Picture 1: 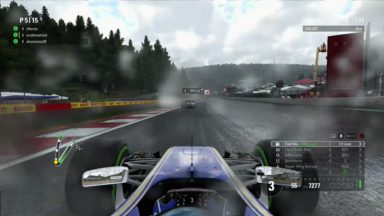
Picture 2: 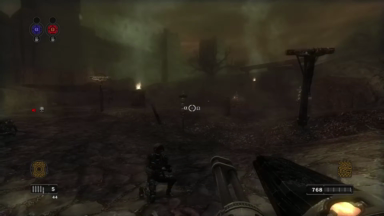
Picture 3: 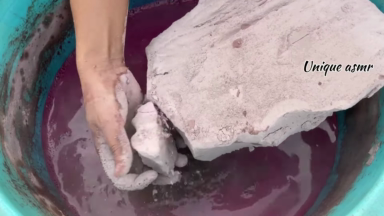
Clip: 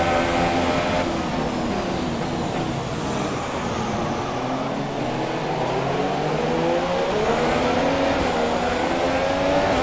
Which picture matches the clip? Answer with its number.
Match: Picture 1